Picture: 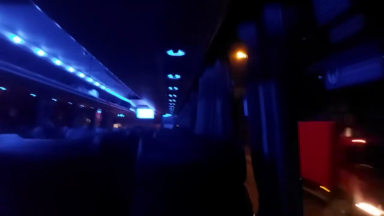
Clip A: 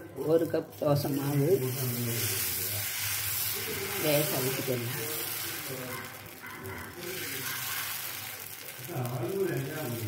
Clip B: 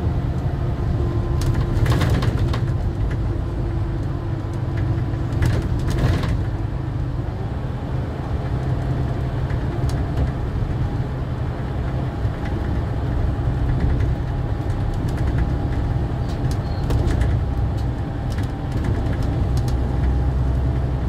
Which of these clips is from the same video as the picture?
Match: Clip B